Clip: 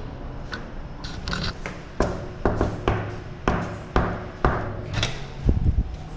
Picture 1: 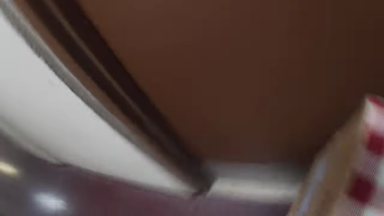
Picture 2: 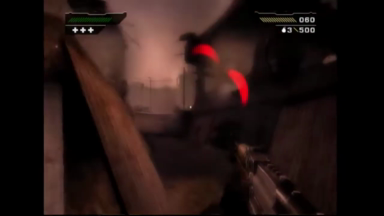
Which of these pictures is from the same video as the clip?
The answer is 1